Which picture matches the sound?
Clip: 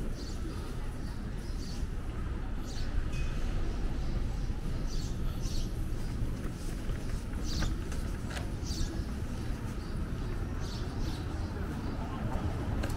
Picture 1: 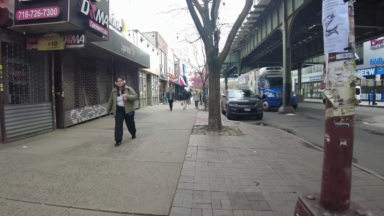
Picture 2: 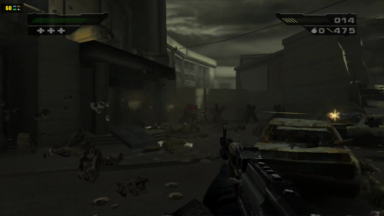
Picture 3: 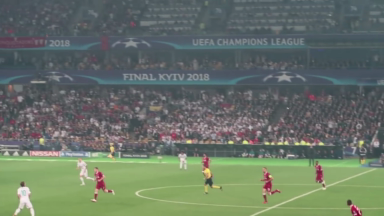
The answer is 1